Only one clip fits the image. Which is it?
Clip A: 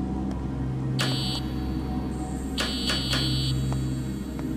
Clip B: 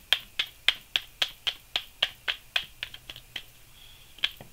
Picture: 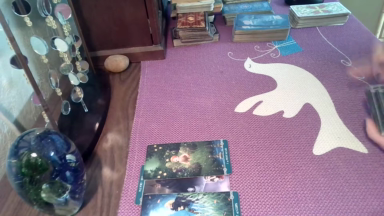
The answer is B